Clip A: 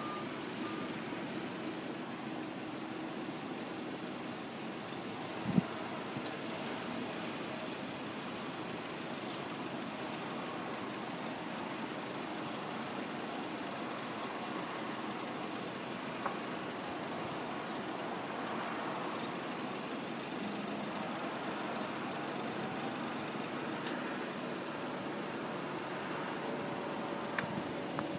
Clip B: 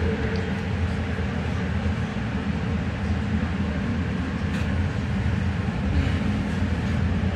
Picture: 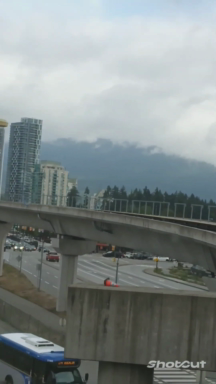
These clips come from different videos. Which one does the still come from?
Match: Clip B